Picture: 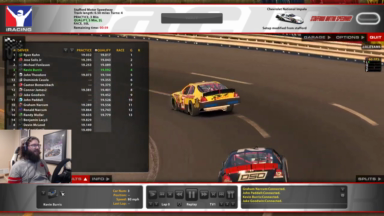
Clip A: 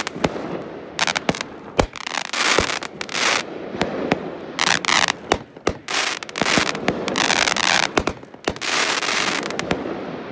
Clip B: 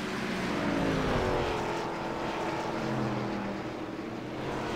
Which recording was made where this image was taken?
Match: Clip B